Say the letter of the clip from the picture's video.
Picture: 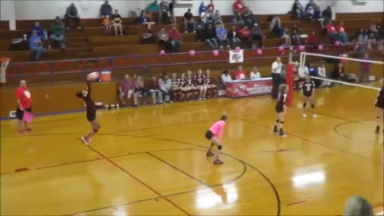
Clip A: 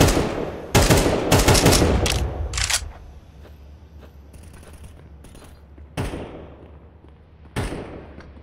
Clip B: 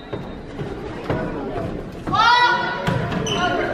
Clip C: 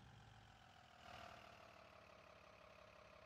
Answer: B